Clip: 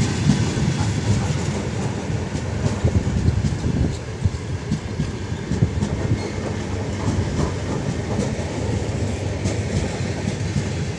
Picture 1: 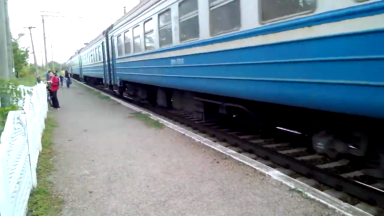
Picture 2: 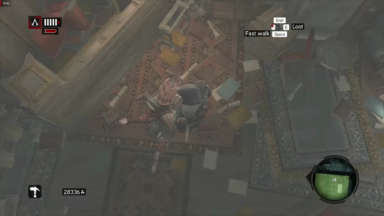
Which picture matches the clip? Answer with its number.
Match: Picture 1